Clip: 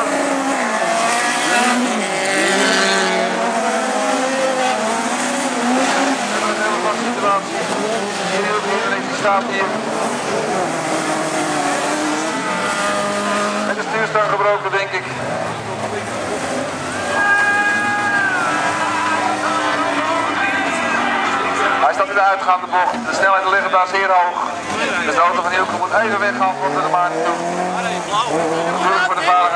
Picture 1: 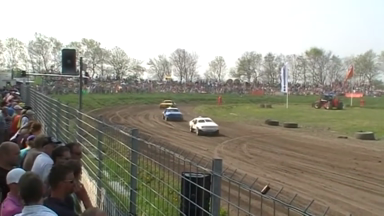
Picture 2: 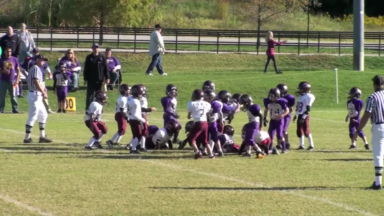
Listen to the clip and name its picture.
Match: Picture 1